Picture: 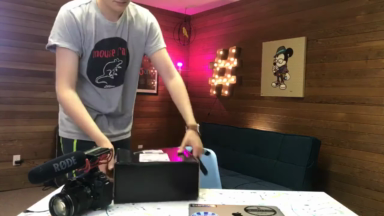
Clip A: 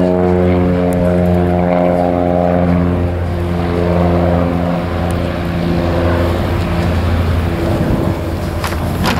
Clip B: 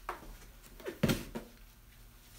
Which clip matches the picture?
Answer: B